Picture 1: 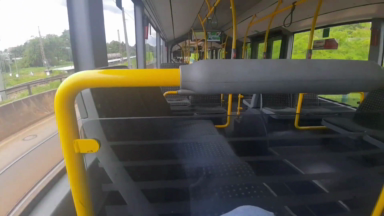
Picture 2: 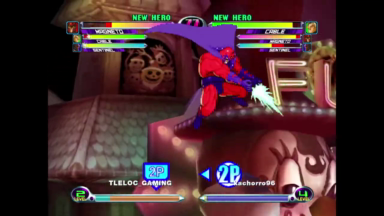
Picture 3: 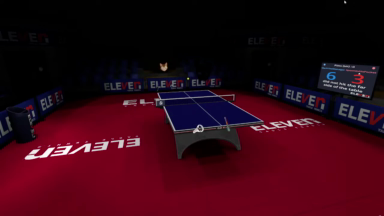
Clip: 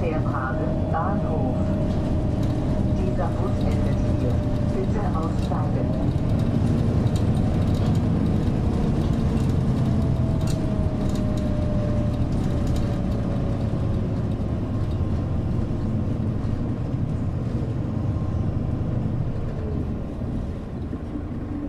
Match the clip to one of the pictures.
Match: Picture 1